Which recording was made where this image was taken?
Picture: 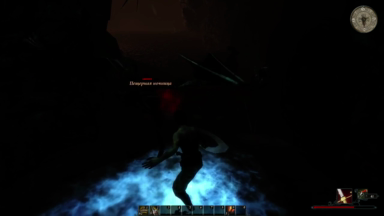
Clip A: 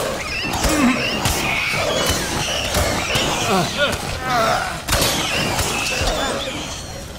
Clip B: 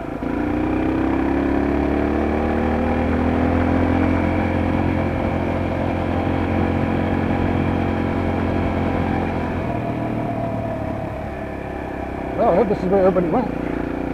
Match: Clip A